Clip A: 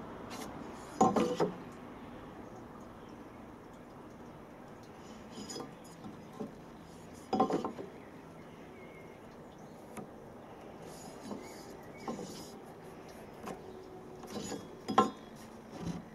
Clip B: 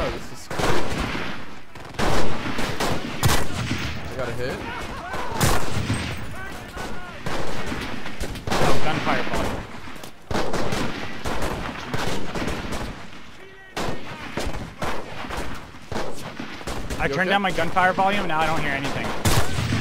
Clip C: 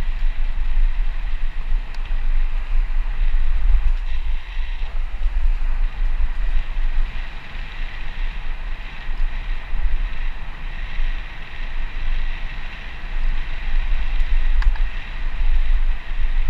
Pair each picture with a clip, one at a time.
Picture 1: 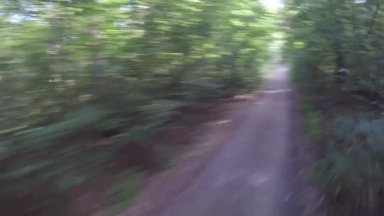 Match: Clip C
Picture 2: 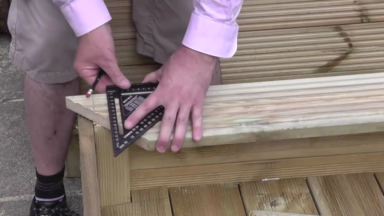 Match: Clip A